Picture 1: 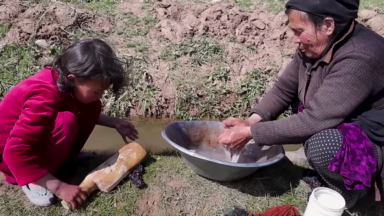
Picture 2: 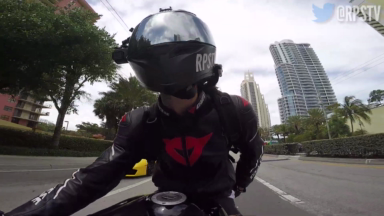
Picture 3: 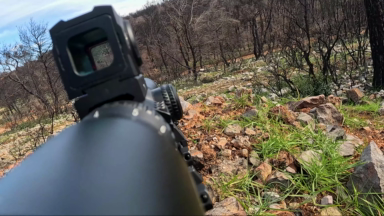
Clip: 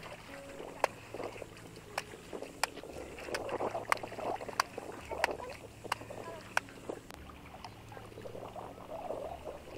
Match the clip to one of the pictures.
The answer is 1